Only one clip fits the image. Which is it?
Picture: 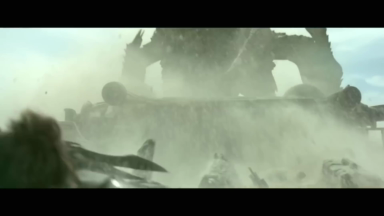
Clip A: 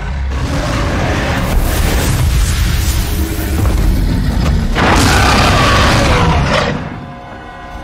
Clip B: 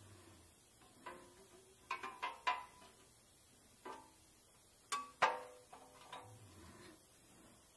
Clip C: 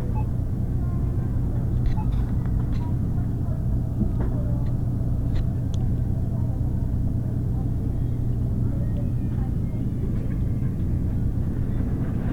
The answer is A